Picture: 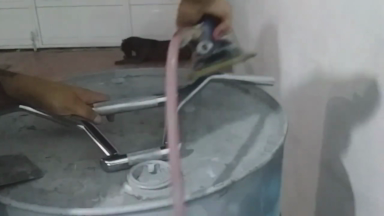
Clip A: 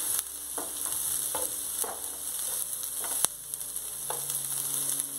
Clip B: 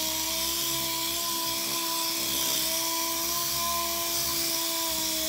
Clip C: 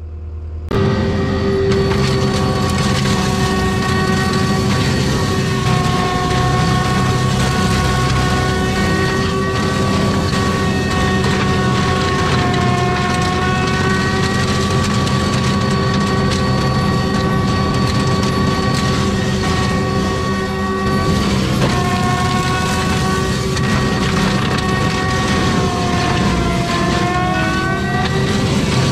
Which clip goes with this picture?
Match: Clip B